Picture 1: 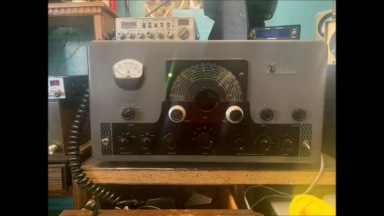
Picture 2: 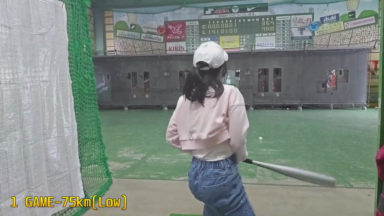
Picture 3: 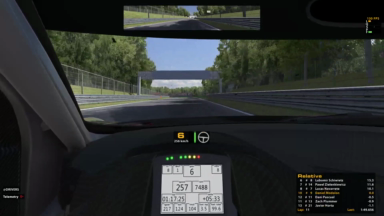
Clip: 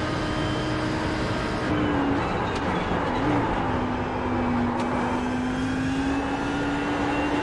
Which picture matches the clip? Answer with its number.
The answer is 3